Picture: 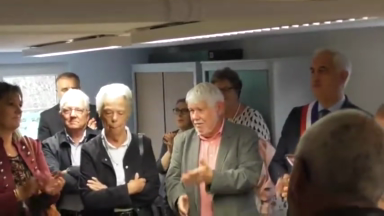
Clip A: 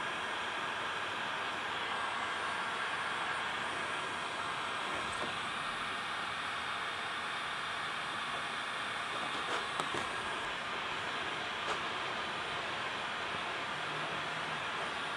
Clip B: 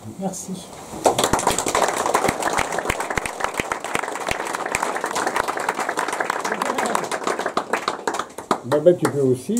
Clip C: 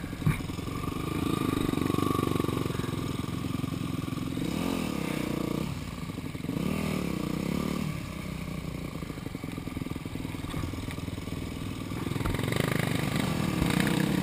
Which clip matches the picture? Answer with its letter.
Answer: B